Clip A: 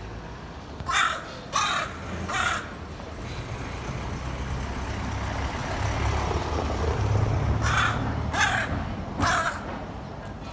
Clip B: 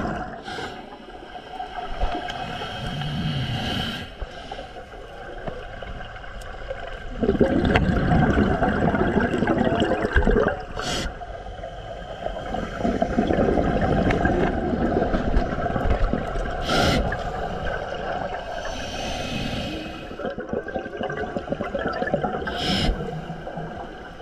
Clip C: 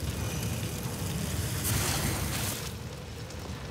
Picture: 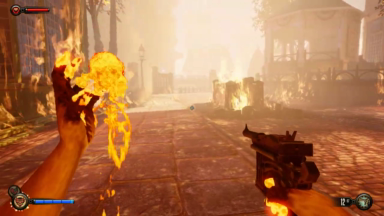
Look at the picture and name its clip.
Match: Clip C